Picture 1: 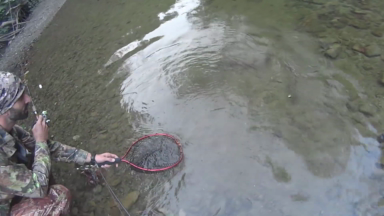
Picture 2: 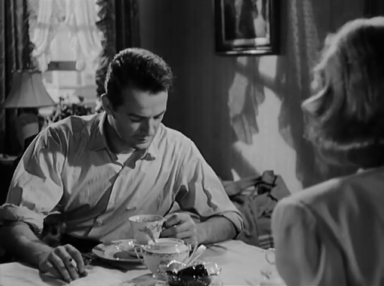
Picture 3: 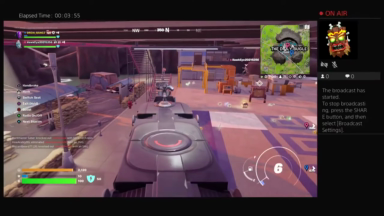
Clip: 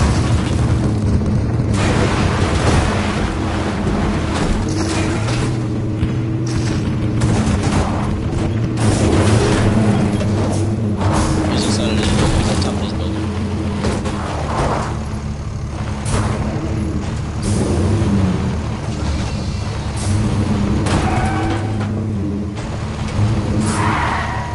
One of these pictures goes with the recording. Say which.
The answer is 3